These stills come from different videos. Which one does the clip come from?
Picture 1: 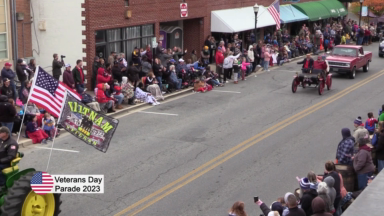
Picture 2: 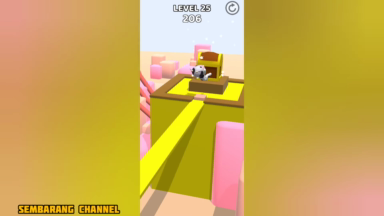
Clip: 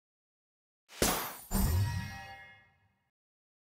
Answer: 2